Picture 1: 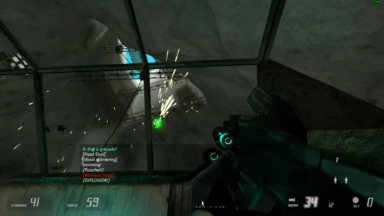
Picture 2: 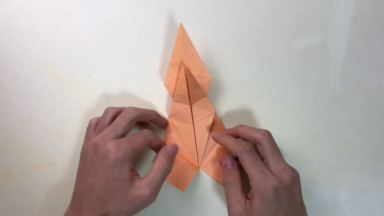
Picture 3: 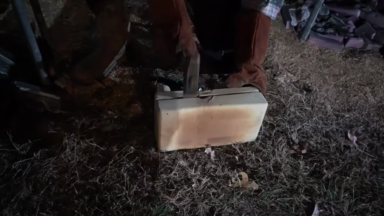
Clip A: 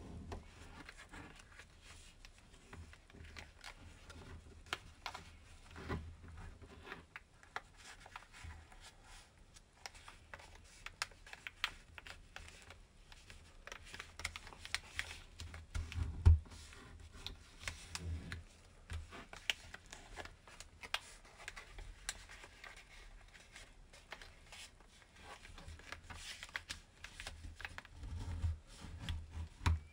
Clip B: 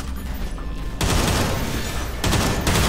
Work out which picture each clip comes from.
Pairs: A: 2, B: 1